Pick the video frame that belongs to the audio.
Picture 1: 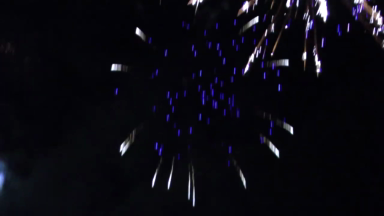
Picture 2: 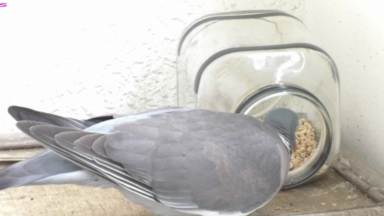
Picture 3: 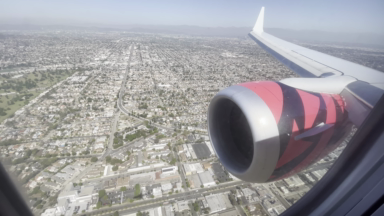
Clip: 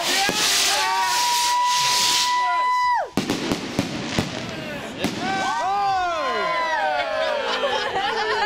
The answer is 1